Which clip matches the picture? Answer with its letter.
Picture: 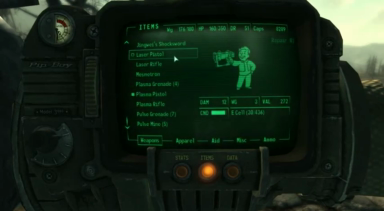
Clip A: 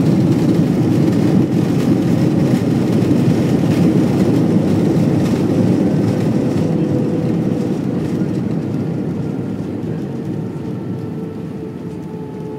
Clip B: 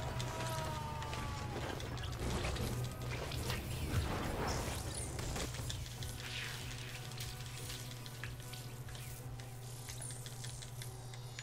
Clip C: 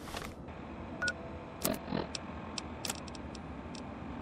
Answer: C